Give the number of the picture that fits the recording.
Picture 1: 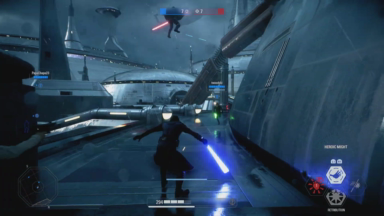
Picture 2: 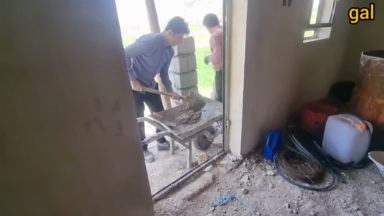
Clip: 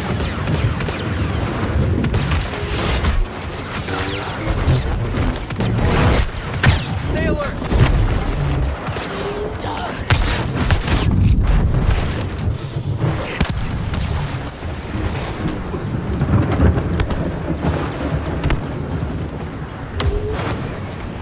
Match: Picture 1